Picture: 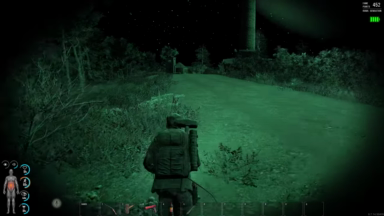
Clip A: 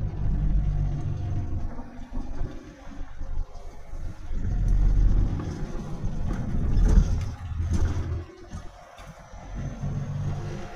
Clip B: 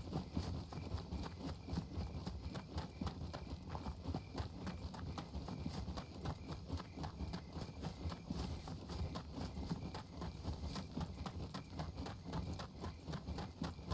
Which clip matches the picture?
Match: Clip B